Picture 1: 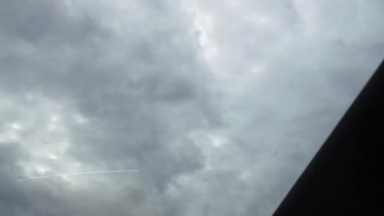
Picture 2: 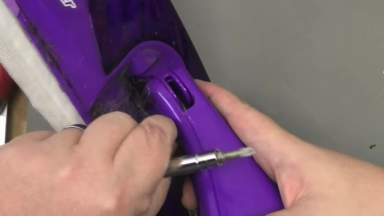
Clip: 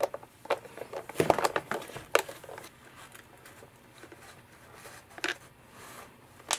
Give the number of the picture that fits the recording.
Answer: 2